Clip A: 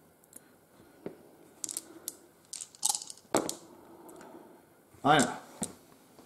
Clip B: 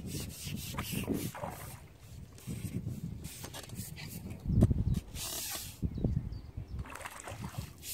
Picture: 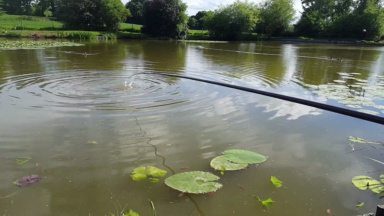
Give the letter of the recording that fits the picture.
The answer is B